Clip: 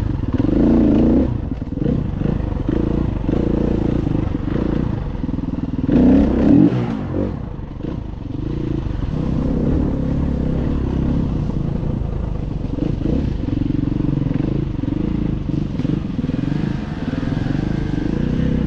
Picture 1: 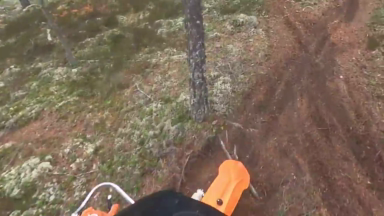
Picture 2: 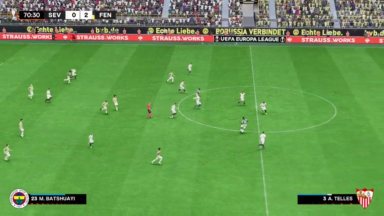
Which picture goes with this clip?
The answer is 1